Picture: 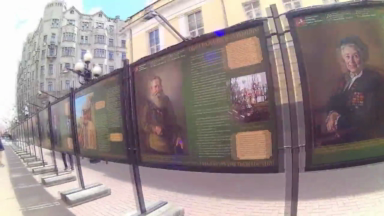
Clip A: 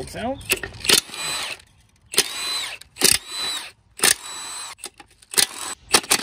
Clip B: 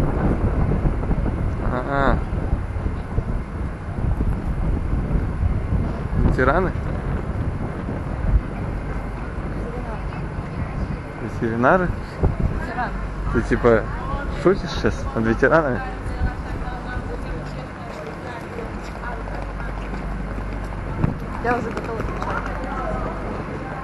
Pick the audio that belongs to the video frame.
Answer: B